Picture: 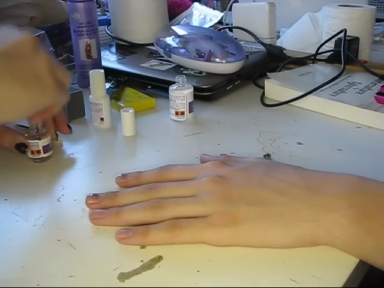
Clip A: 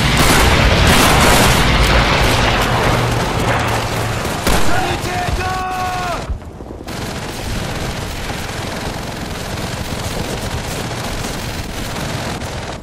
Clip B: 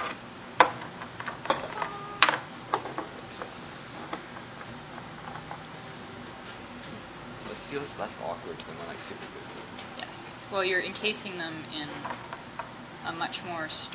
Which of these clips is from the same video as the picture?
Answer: B